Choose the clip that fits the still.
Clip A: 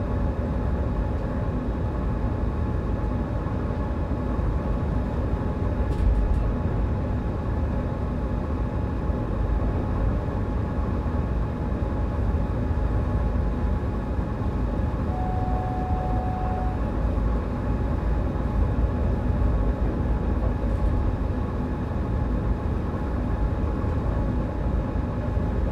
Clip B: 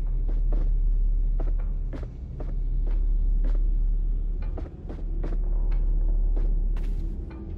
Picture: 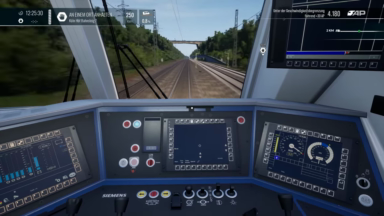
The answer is A